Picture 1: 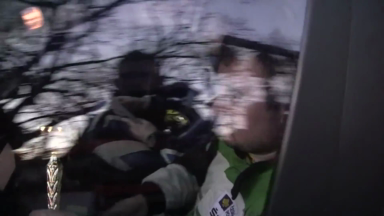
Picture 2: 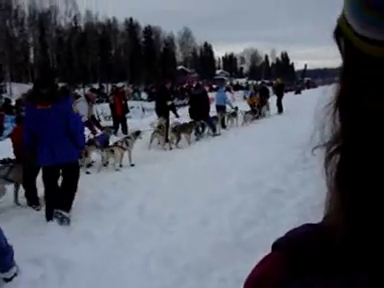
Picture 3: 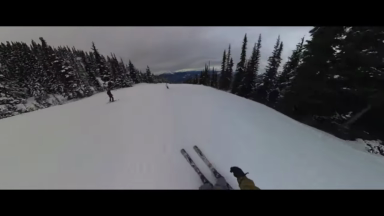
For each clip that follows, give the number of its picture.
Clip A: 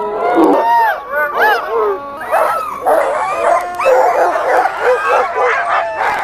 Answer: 2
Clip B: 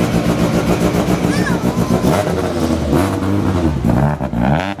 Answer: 1